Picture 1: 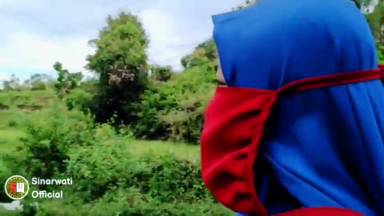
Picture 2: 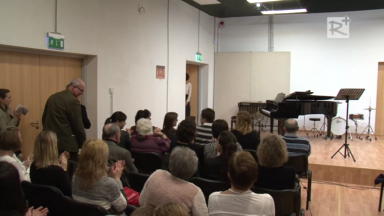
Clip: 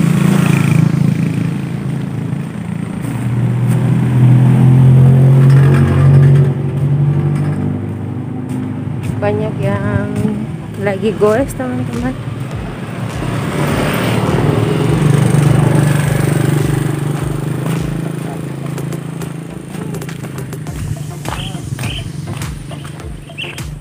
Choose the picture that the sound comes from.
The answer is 1